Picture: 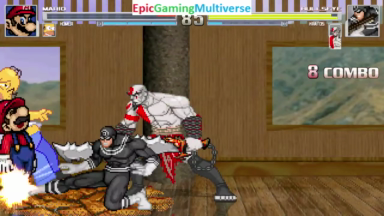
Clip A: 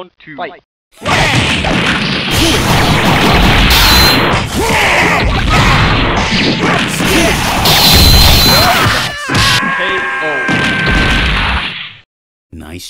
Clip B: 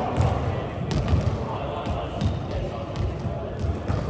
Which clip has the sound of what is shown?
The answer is A